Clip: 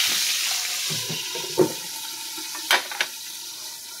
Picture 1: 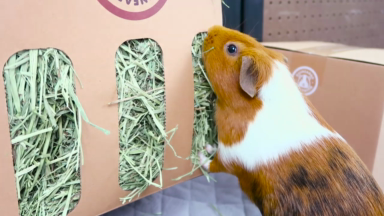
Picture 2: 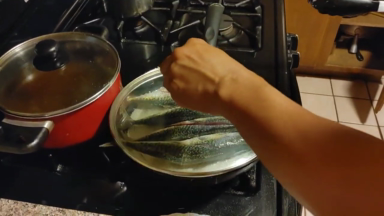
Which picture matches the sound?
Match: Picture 2